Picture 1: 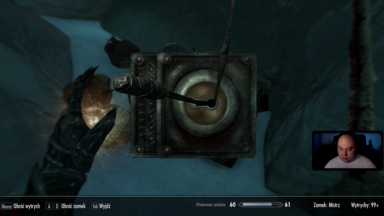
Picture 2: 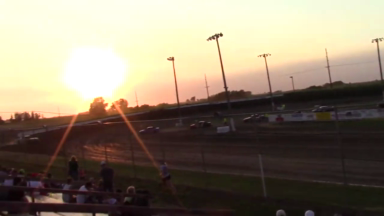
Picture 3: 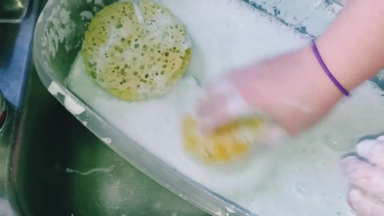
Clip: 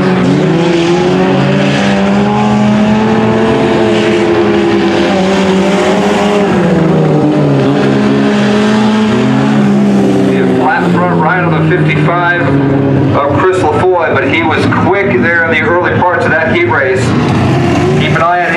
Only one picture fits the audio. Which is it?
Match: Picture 2